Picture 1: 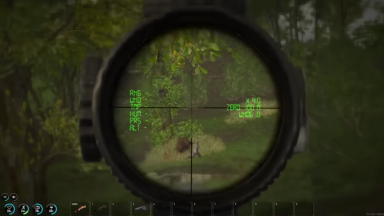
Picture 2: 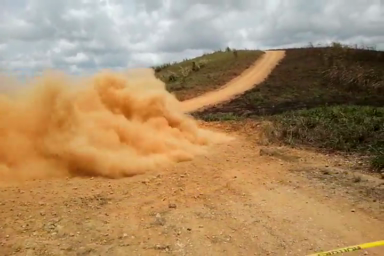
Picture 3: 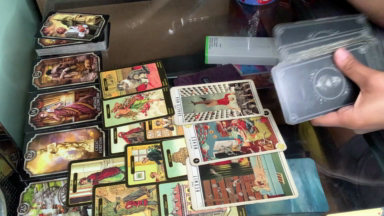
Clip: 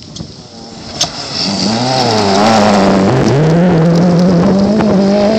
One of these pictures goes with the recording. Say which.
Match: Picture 2